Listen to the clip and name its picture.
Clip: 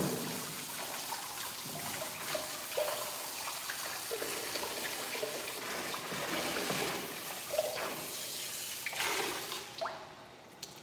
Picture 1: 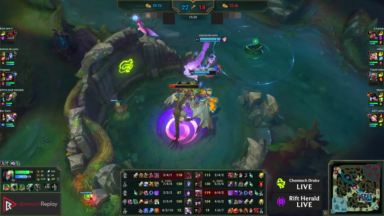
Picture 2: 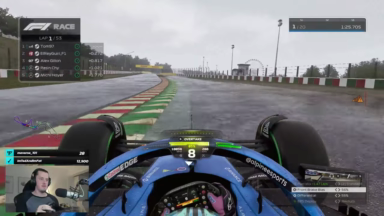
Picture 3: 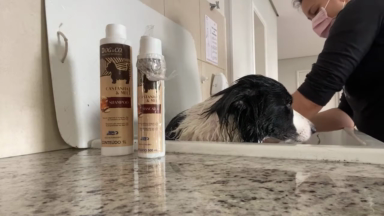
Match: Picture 3